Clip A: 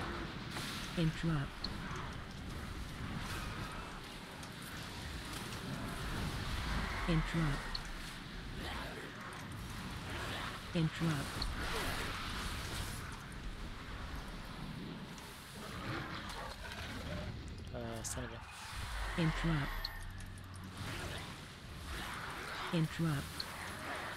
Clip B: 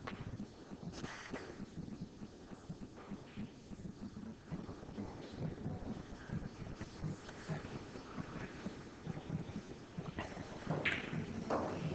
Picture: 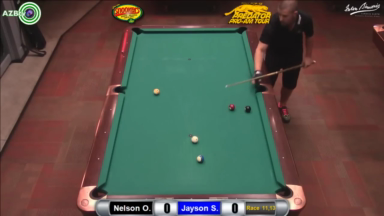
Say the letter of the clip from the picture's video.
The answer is B